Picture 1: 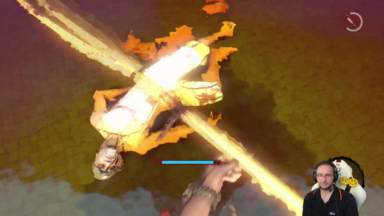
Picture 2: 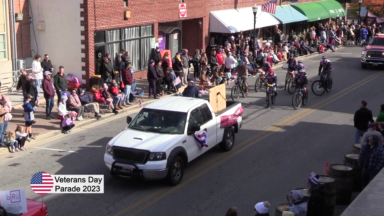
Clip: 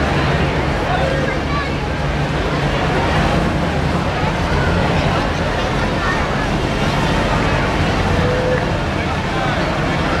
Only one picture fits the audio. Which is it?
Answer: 2